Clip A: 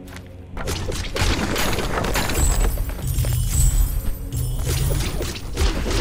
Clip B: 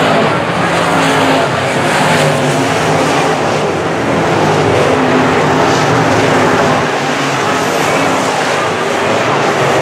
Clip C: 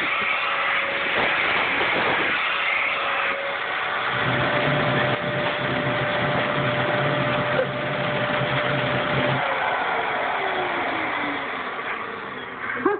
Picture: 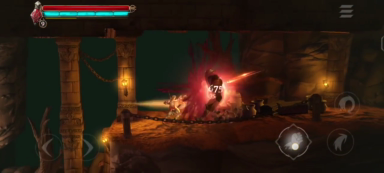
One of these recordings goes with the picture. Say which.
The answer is A